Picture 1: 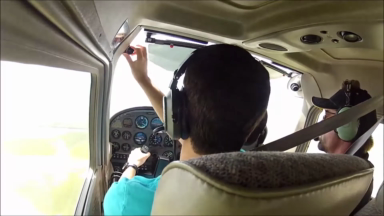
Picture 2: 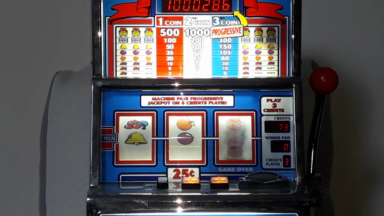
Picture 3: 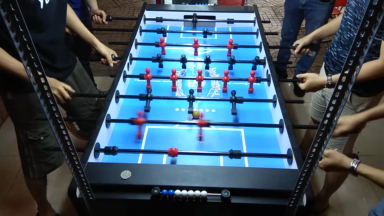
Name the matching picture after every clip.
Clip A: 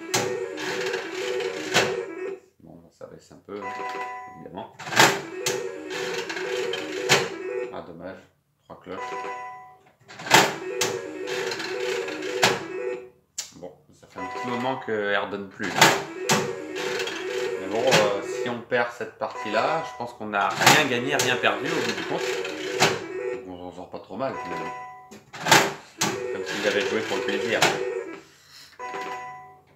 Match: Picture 2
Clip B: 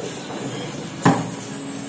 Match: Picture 3